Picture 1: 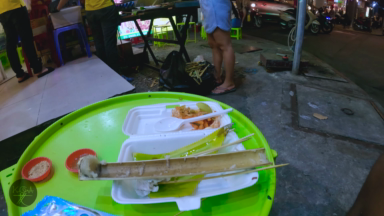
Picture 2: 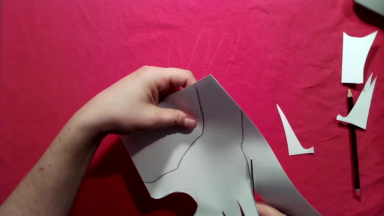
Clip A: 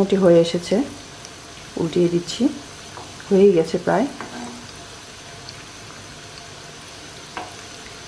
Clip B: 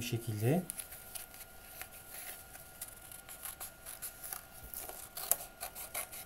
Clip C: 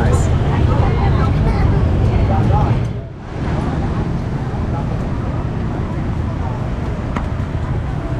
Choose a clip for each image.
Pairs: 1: C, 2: B